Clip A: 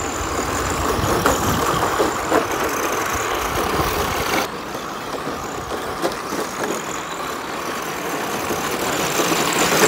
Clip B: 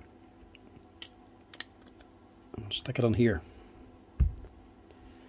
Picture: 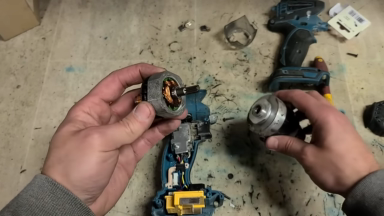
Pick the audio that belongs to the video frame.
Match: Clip B